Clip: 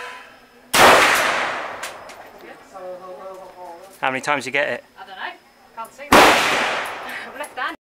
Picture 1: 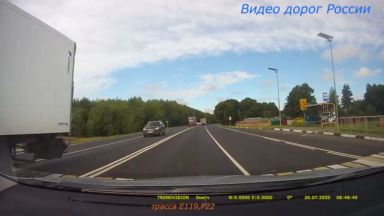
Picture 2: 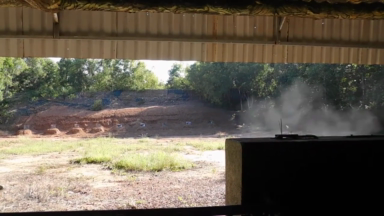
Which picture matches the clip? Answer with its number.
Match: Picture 2